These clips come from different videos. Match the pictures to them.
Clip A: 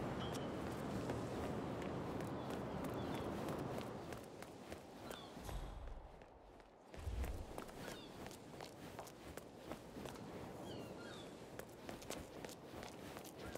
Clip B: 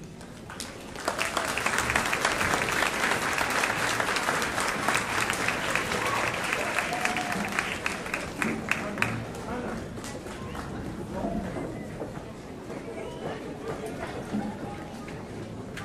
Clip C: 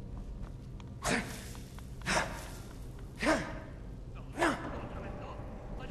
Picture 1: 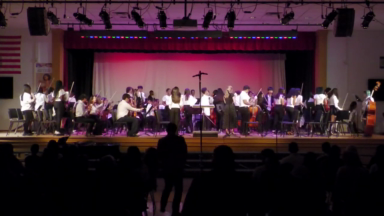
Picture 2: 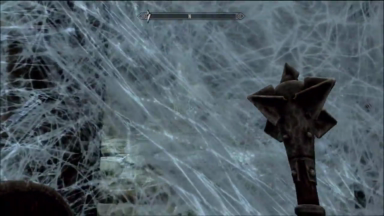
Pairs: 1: B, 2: C